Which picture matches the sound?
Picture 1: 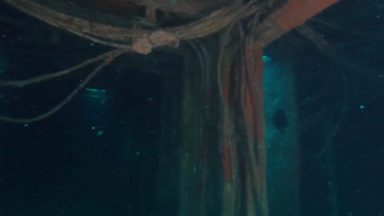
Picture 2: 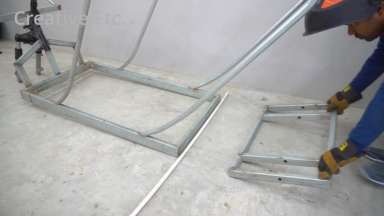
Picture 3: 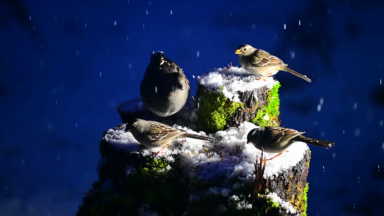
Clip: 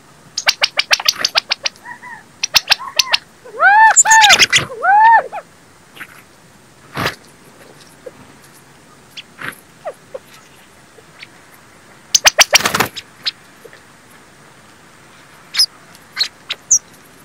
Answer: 3